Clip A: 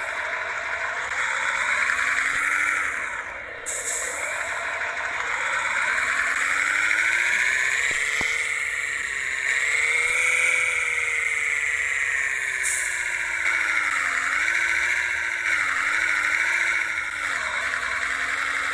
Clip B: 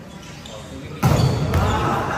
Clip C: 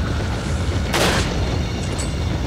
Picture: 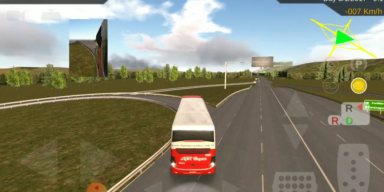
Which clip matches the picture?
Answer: A